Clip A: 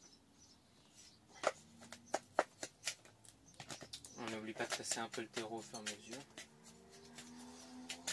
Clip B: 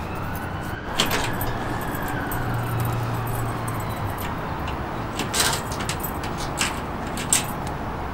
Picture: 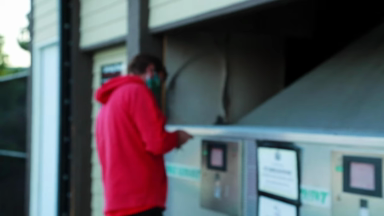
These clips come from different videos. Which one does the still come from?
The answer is B